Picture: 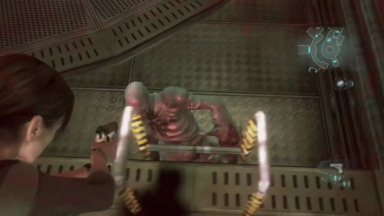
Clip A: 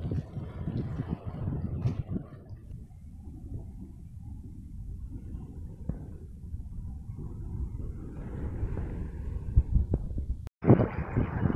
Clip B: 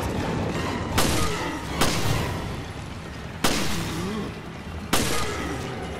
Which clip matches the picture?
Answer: B